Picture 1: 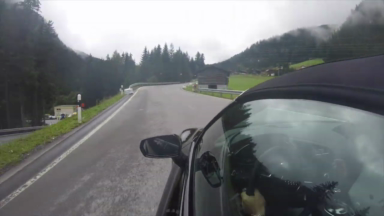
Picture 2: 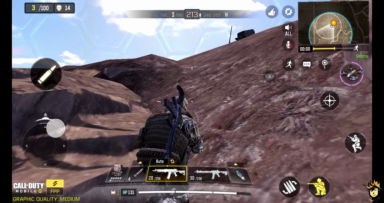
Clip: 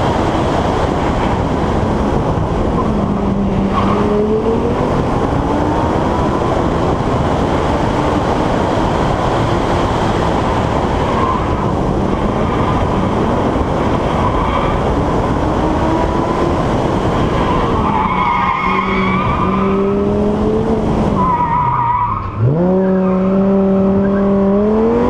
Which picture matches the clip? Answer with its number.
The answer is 1